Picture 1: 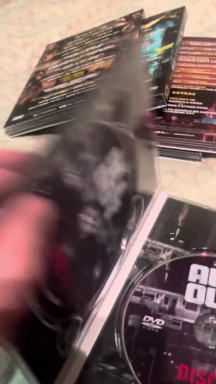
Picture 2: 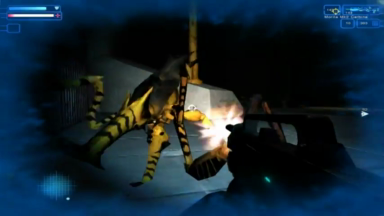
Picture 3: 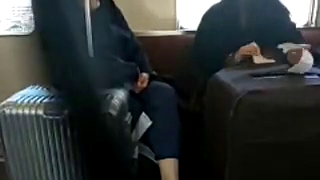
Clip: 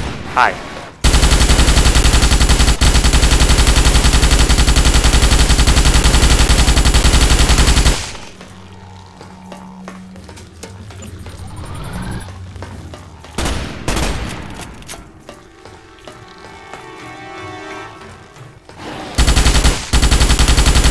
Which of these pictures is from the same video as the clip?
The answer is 2